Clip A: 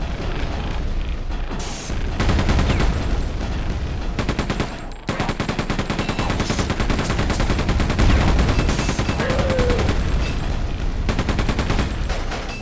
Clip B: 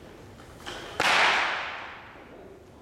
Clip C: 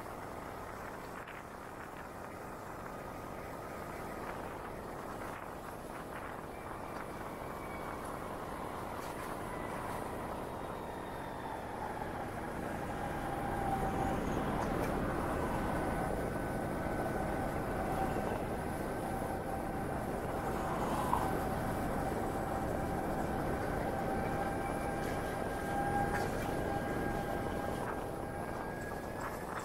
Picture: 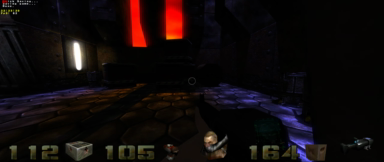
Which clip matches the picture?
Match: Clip A